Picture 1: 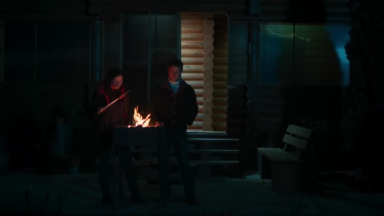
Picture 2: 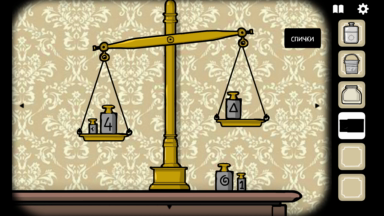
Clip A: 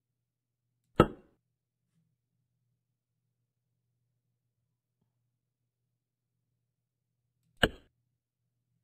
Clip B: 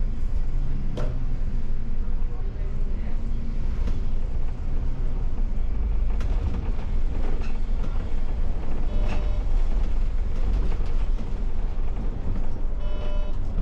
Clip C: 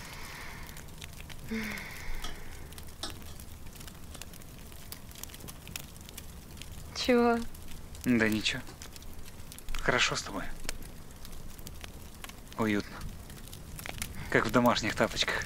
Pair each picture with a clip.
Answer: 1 C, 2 A